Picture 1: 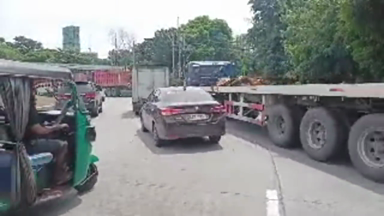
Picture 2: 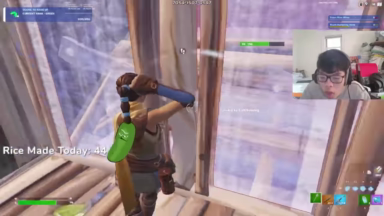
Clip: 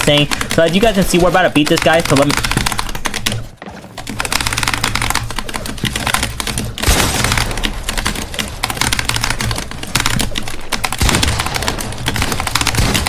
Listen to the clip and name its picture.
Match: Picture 2